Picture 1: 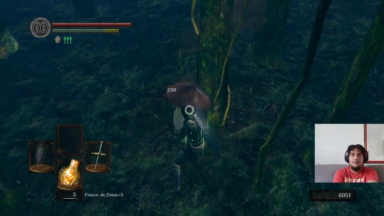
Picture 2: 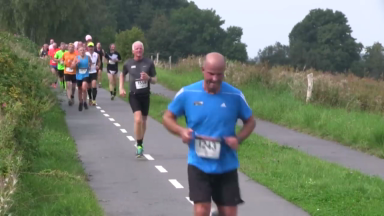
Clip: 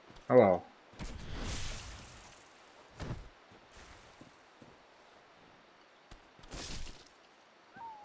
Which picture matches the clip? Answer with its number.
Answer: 1